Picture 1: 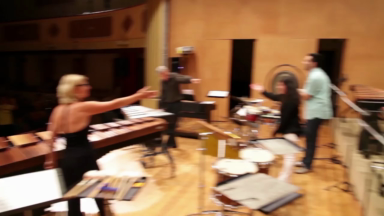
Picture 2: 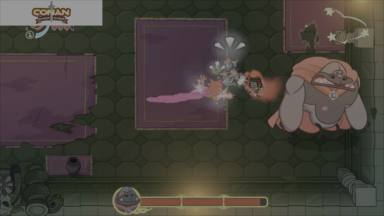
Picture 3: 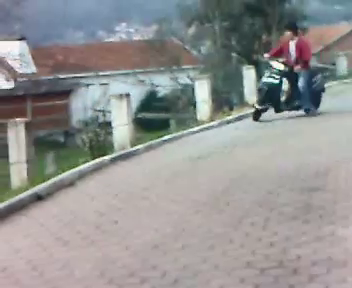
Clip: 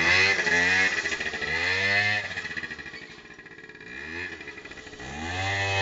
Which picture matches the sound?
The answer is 3